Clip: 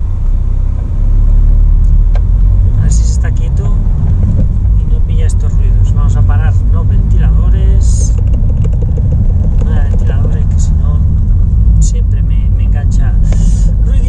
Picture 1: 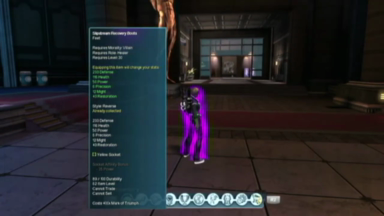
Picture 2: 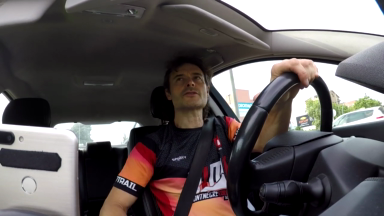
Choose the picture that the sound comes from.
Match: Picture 2